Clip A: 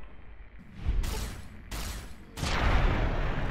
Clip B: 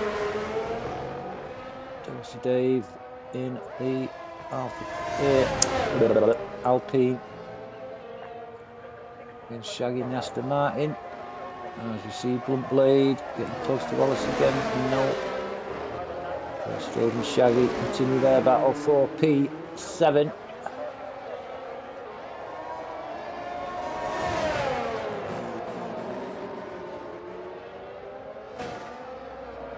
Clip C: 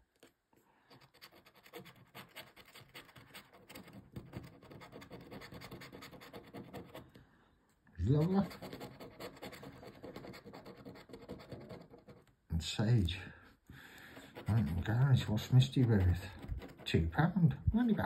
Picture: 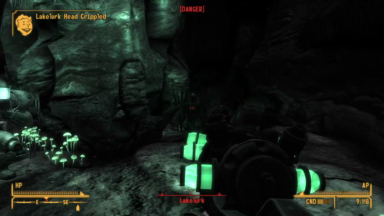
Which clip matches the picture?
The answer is A